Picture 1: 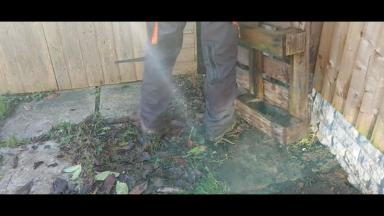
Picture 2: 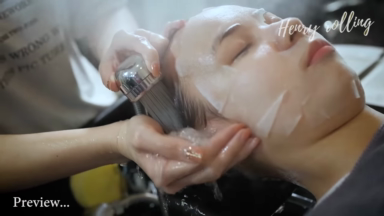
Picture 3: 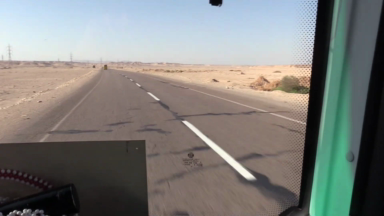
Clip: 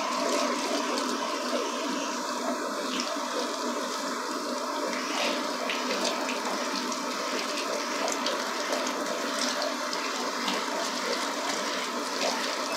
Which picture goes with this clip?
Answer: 2